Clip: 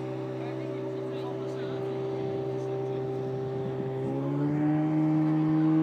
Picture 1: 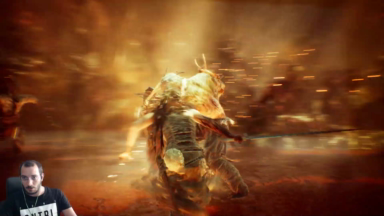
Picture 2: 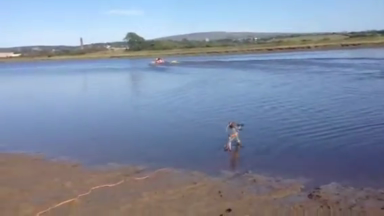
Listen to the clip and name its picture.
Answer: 2